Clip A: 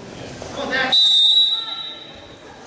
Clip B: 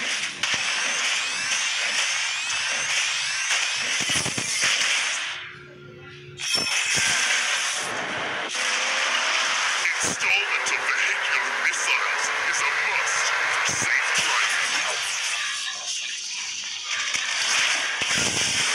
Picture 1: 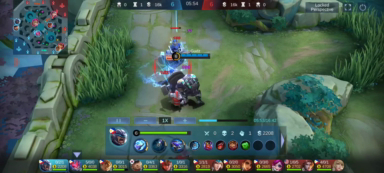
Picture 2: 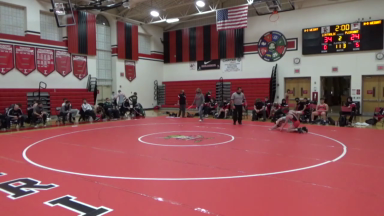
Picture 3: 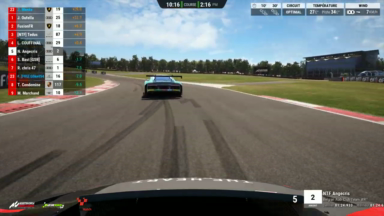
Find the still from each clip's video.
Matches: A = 2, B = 1